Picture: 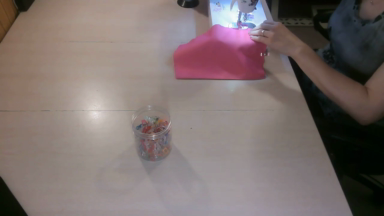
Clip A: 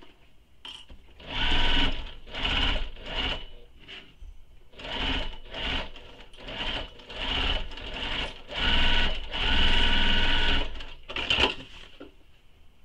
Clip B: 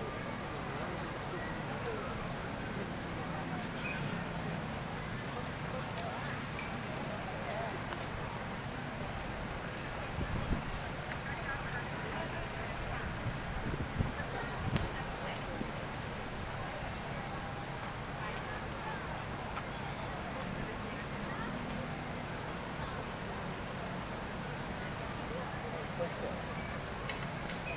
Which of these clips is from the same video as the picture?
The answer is A